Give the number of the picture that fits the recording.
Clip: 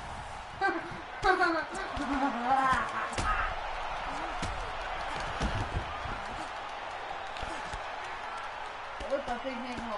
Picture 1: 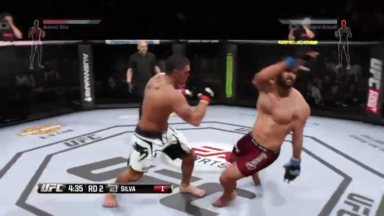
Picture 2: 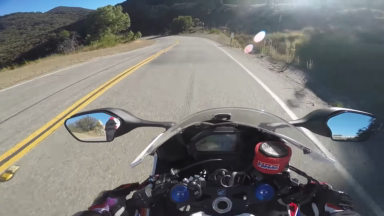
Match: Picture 1